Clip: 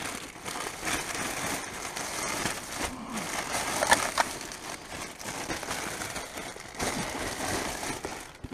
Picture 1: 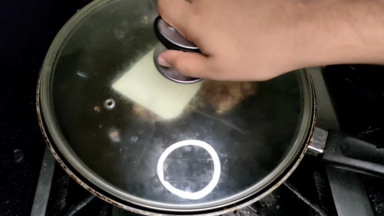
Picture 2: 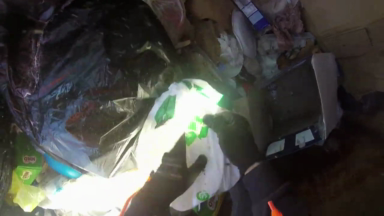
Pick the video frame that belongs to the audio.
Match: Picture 2